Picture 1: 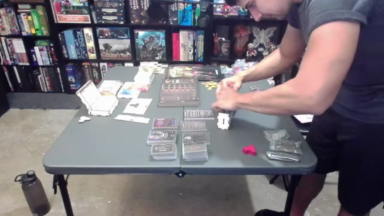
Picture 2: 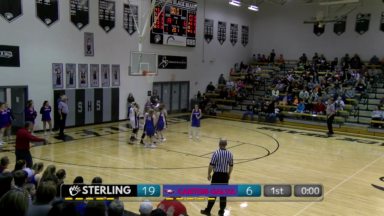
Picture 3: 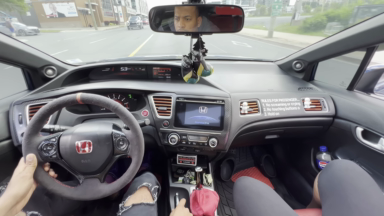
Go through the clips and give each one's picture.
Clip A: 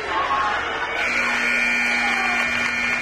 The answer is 2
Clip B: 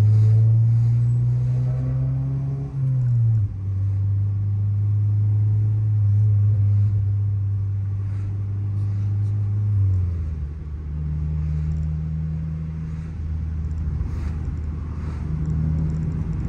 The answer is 3